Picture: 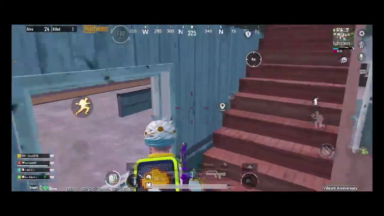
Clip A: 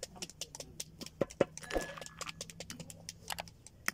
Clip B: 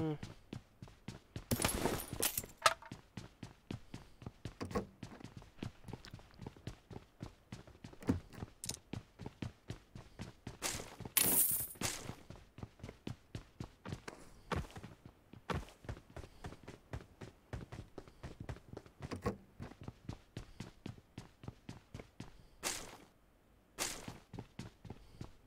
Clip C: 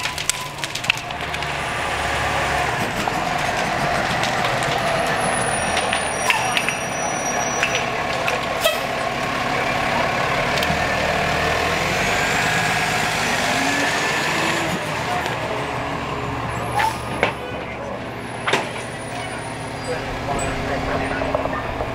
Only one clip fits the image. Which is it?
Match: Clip B